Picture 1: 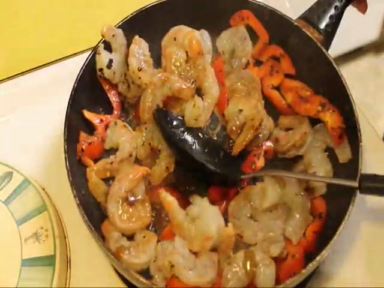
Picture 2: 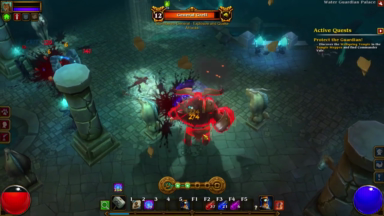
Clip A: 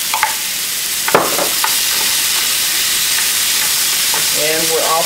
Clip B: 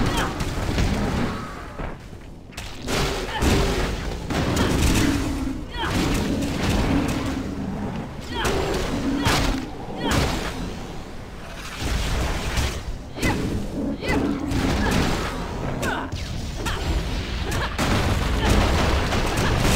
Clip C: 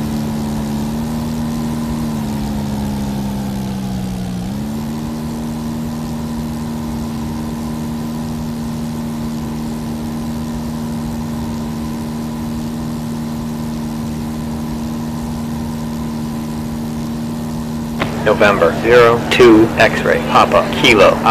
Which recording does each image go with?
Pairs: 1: A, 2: B